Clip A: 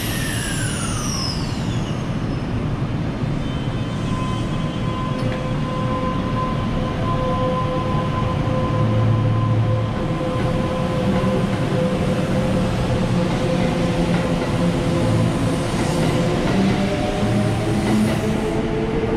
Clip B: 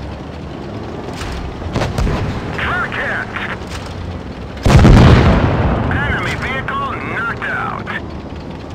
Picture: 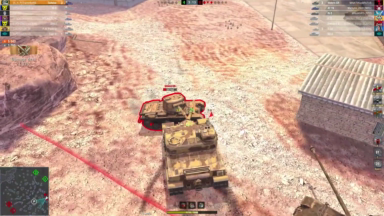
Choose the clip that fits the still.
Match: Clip B